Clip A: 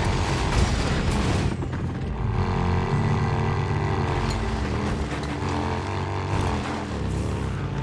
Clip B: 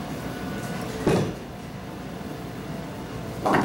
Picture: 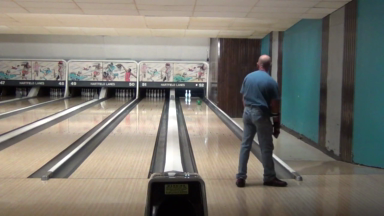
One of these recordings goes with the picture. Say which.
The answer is B